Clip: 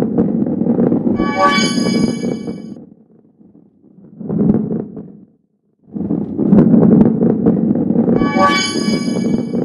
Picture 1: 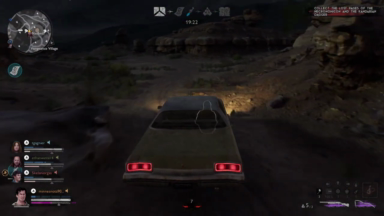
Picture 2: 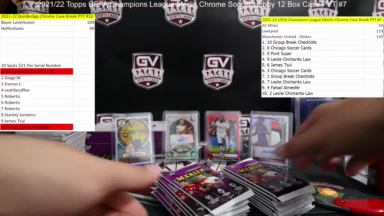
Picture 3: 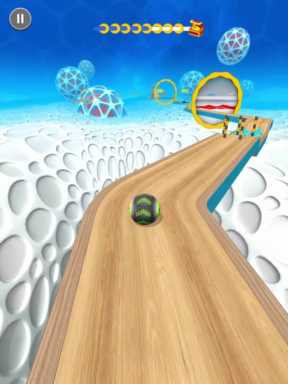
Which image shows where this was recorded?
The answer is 3